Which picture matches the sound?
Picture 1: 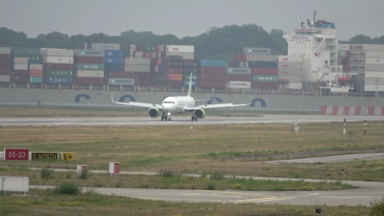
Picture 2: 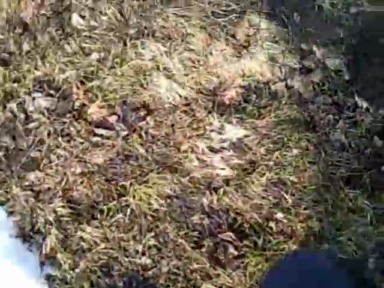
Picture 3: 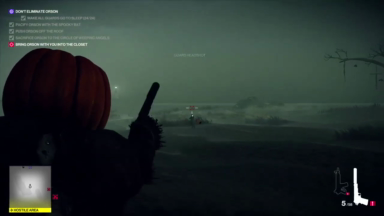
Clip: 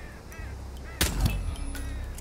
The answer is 3